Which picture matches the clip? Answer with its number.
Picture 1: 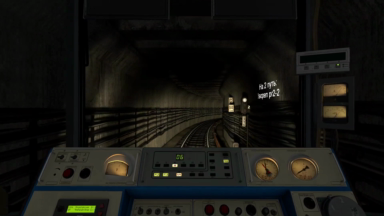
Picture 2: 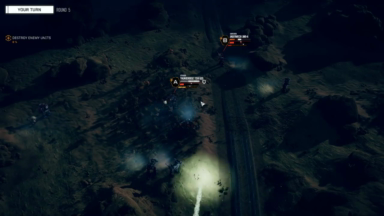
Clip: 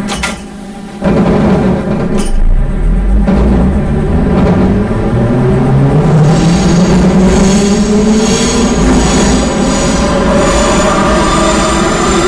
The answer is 1